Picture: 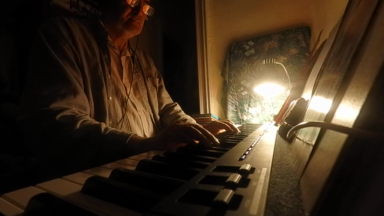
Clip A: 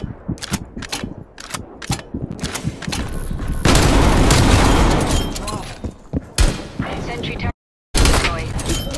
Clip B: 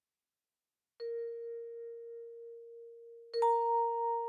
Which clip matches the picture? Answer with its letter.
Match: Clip B